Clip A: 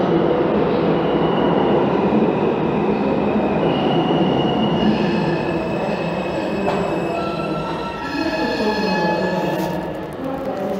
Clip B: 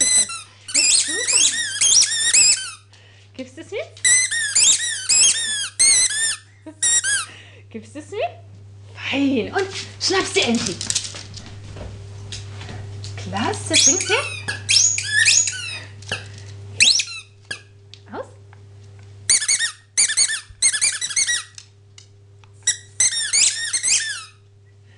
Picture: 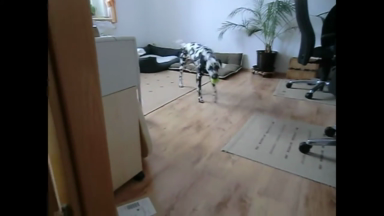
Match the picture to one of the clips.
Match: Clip B